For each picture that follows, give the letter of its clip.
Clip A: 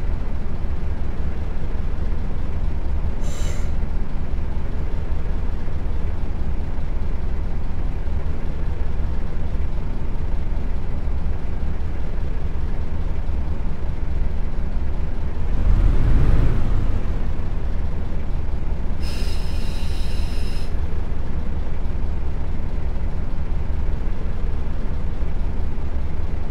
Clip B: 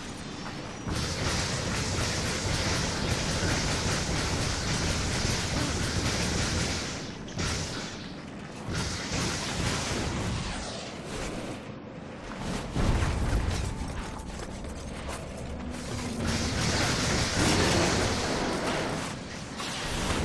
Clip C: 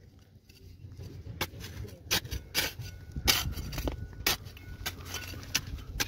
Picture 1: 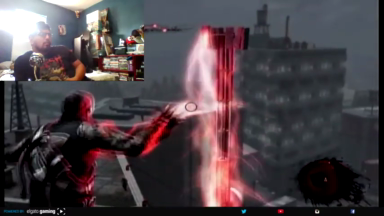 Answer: B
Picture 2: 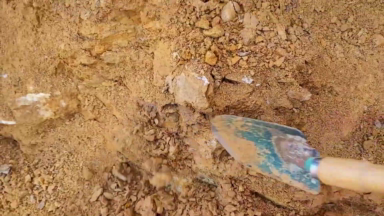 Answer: C